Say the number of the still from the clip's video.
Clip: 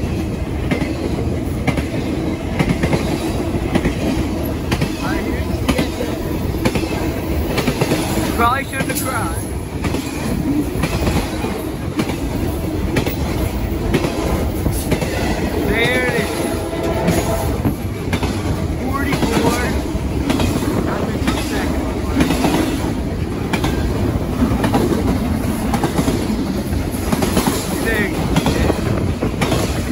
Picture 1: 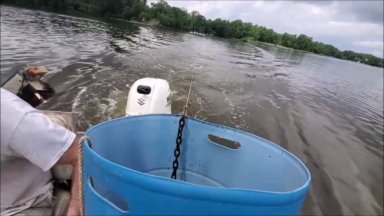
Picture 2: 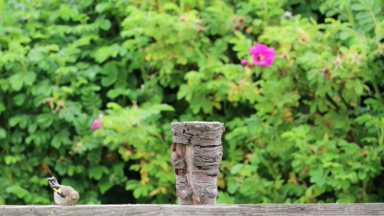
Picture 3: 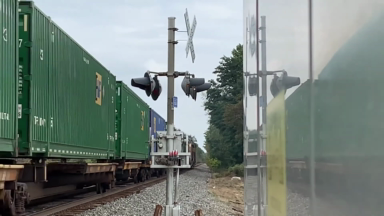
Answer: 3